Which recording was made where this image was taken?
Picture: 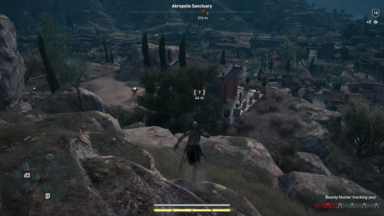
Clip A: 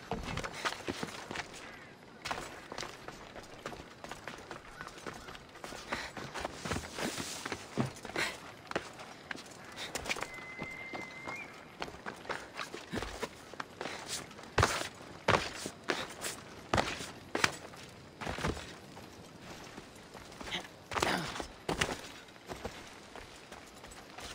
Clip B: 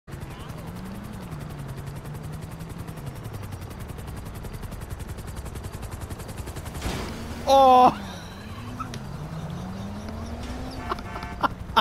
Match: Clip A